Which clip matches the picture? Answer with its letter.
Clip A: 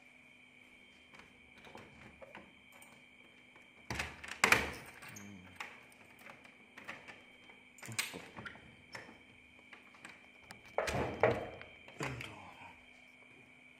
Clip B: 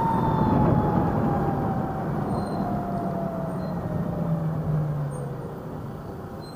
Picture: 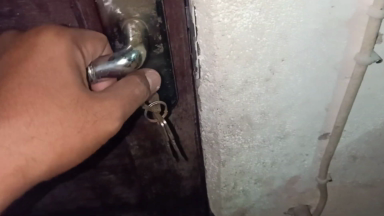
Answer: A